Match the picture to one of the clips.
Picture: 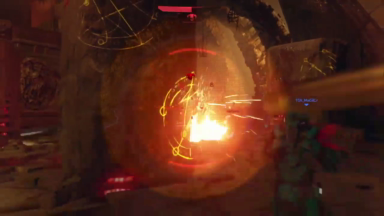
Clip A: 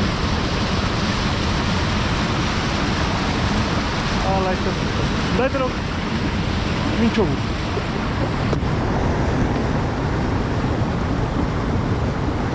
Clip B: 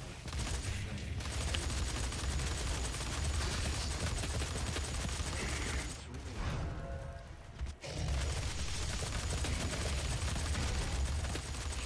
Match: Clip B